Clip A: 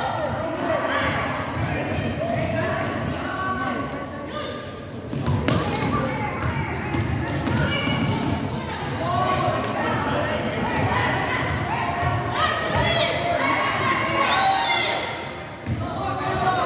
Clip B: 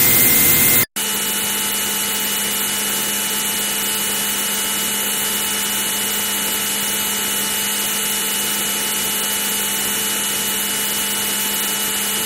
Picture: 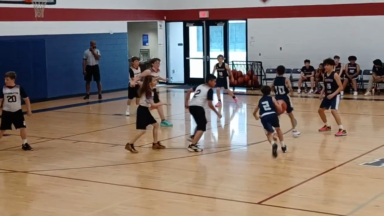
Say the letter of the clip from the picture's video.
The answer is A